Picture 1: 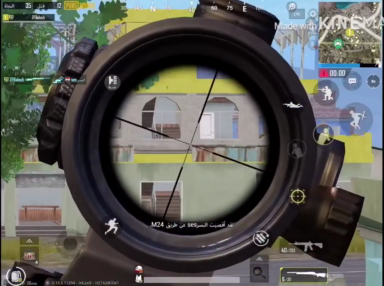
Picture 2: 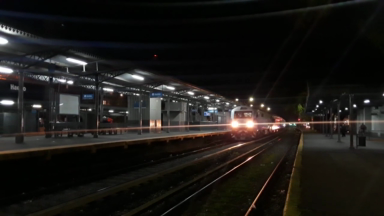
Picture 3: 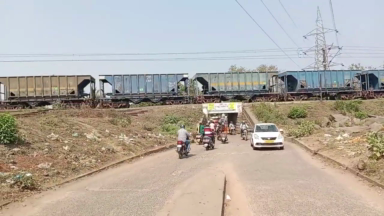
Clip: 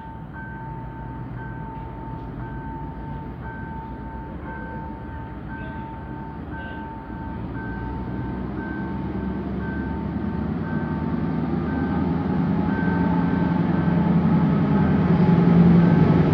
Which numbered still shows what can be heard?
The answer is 2